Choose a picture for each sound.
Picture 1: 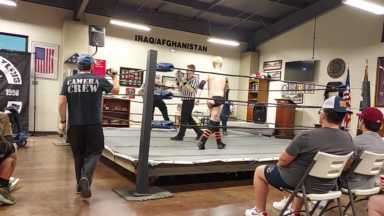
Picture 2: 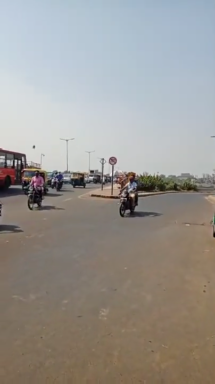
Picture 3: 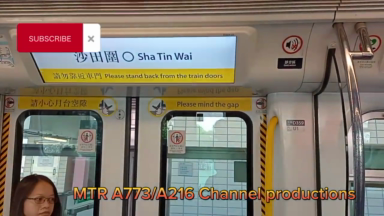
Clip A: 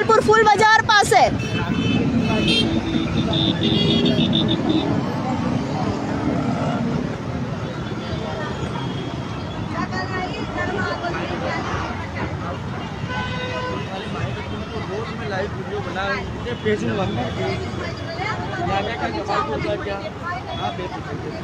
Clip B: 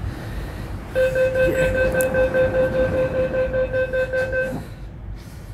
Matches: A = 2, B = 3